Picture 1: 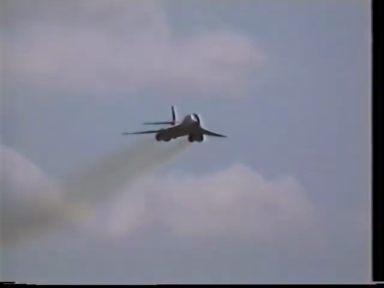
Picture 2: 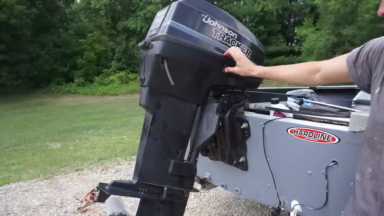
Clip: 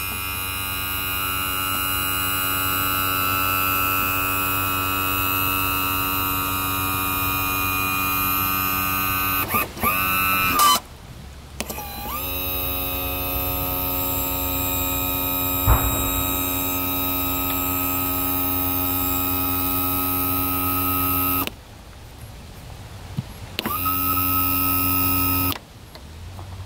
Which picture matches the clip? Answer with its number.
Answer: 2